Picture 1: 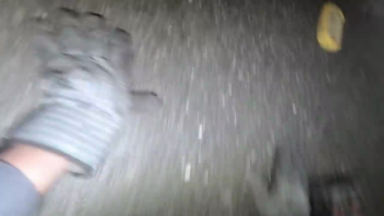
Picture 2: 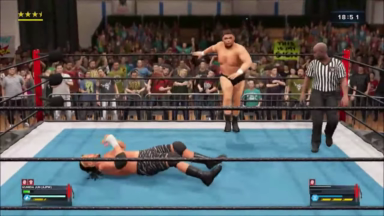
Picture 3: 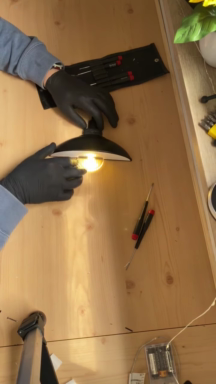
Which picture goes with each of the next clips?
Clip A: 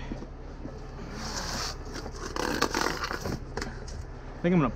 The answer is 1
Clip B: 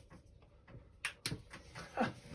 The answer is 3